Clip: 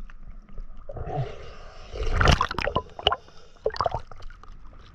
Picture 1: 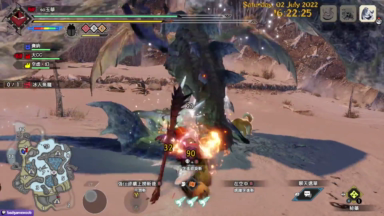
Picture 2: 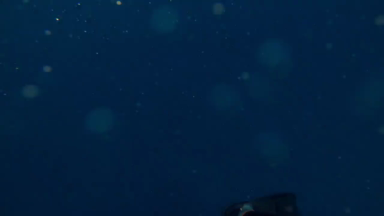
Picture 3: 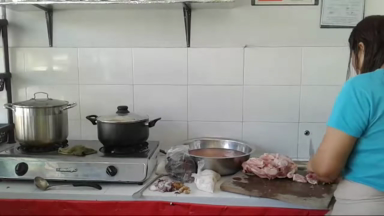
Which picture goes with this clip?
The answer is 2